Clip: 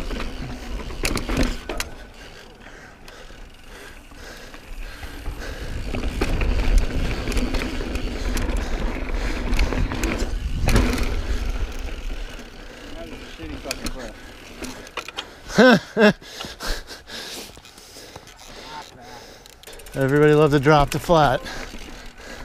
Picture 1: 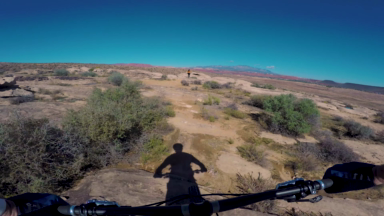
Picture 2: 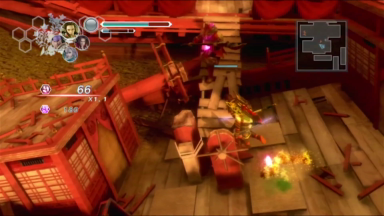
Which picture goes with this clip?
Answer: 1